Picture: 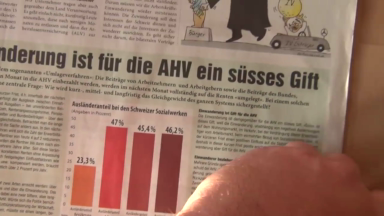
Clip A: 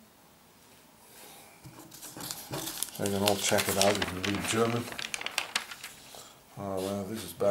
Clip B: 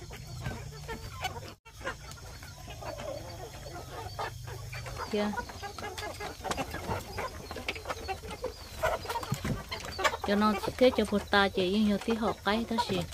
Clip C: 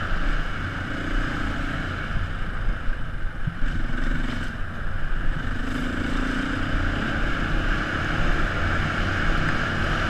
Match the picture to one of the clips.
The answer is A